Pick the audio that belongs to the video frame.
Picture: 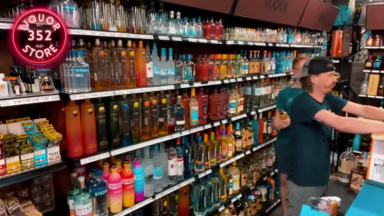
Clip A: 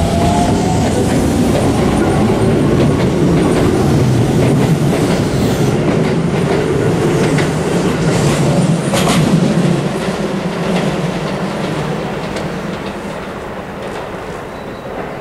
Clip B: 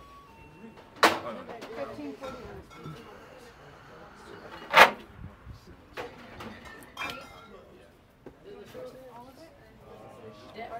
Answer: B